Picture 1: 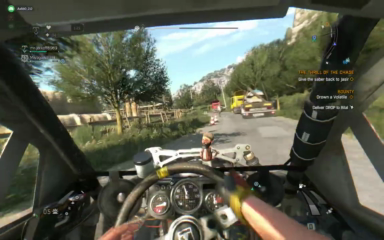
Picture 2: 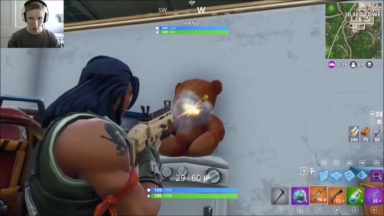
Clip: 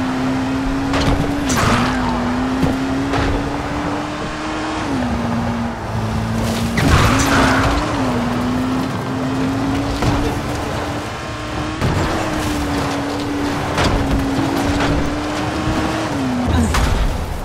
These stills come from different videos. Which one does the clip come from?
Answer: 1